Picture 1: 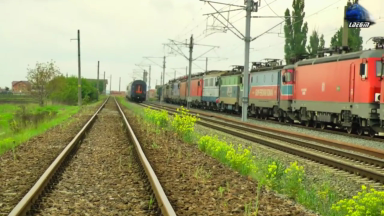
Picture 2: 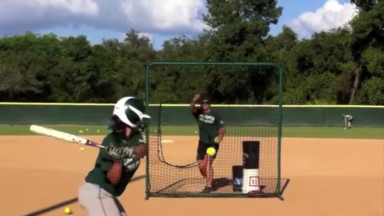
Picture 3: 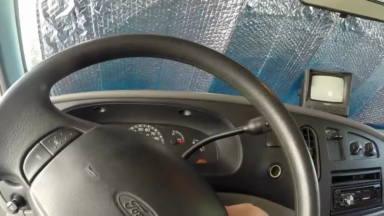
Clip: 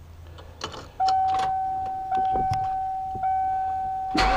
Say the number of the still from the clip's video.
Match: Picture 3